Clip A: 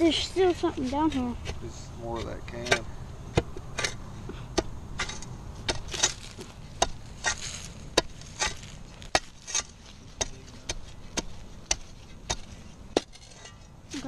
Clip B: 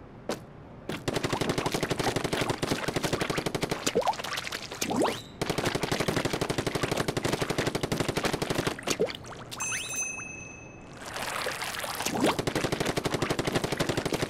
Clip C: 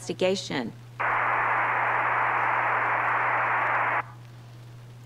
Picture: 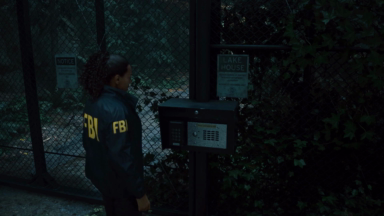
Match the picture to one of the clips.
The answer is C